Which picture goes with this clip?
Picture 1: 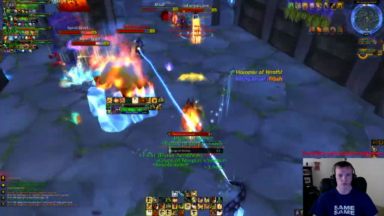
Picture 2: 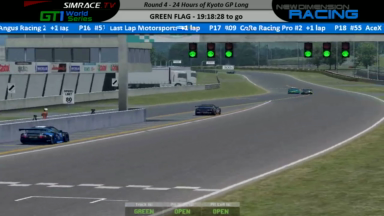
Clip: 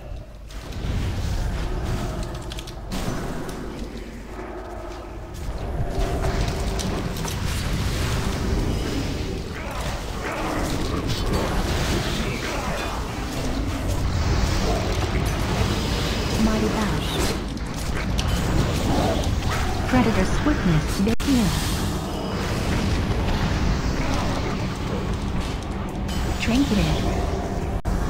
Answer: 1